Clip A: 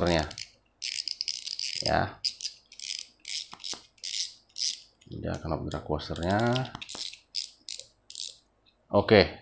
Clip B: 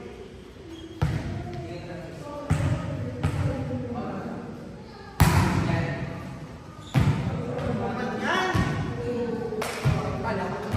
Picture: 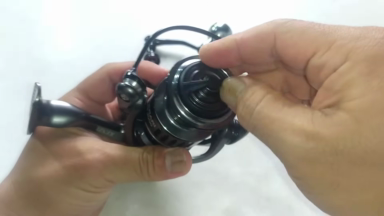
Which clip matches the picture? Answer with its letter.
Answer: A